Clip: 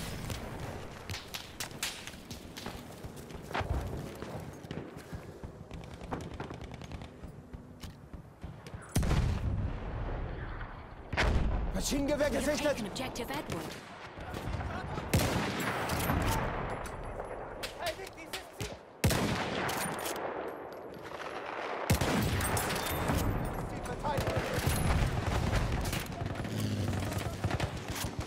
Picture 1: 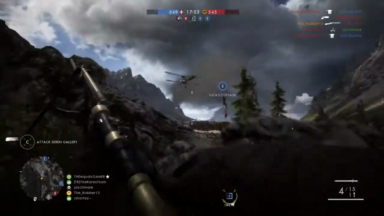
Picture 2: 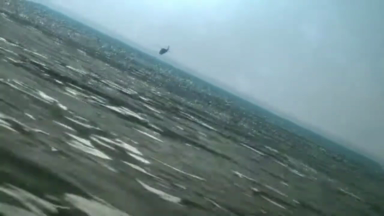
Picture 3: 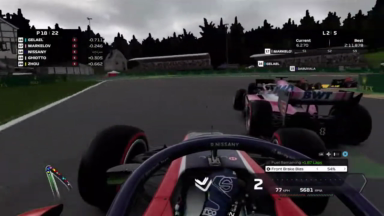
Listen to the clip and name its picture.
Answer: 1